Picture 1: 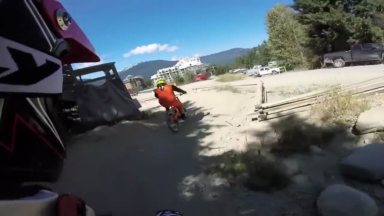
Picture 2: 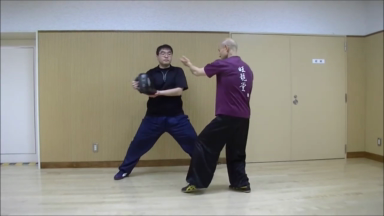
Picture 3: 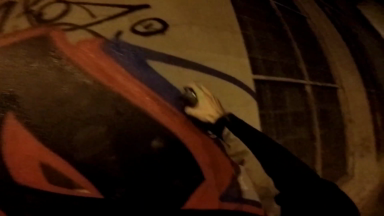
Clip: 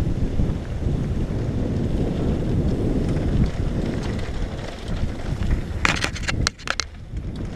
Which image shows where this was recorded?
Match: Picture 1